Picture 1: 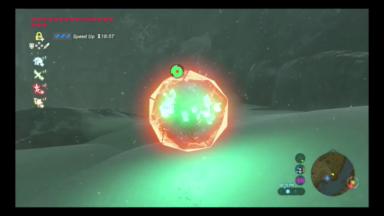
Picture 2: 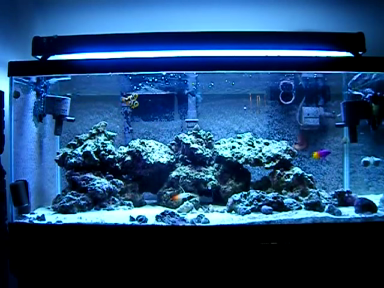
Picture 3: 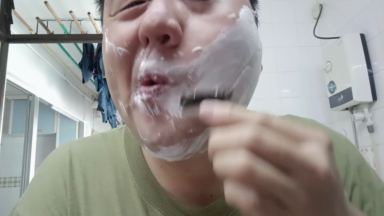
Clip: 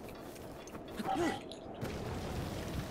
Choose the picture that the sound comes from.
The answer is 1